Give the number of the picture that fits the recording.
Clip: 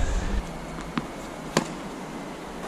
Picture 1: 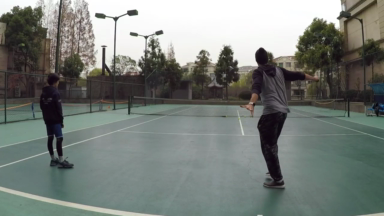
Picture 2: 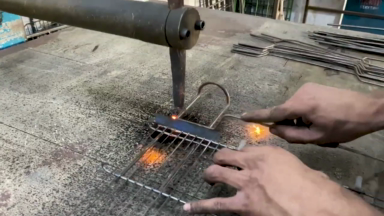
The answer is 1